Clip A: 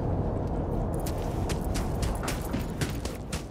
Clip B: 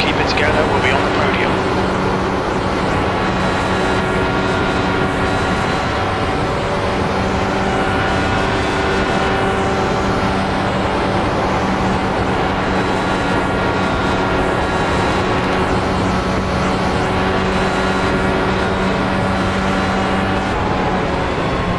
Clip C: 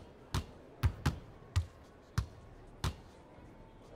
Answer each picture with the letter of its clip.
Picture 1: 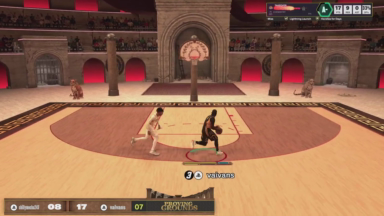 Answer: C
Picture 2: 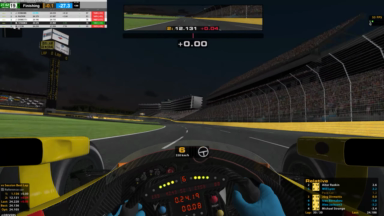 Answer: B